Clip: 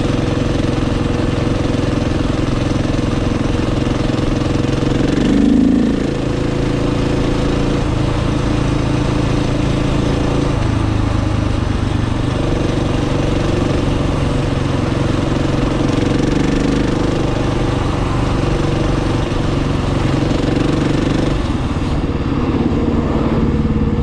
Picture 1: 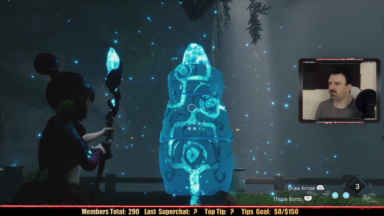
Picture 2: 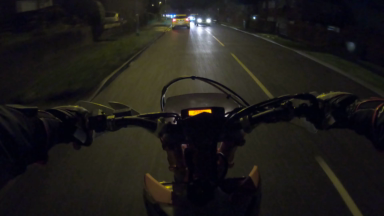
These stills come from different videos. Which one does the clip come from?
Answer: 2